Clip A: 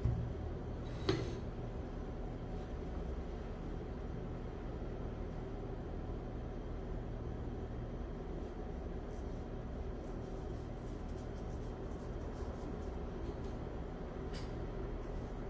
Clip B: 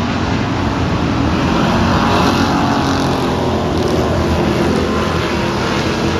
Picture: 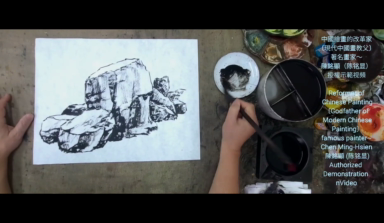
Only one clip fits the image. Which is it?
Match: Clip A